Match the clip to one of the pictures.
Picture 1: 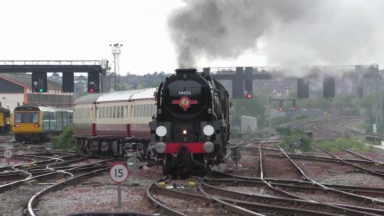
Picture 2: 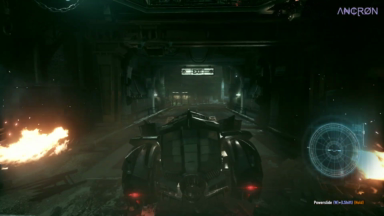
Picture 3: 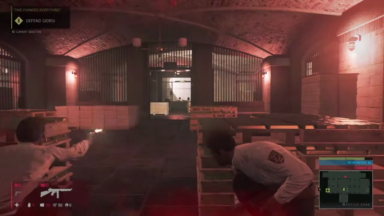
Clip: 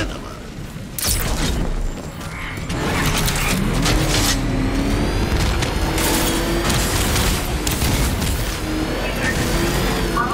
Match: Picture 2